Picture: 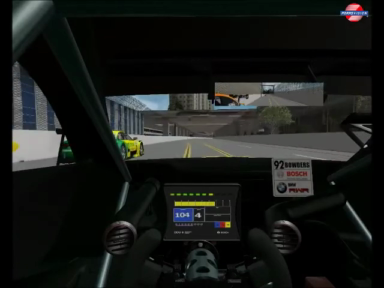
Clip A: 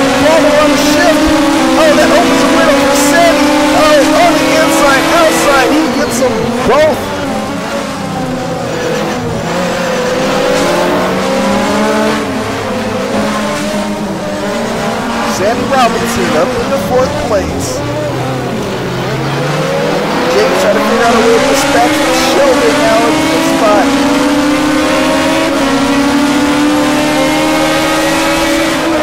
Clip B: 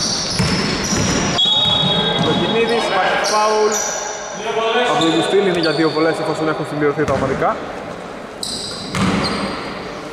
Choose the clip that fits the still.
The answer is A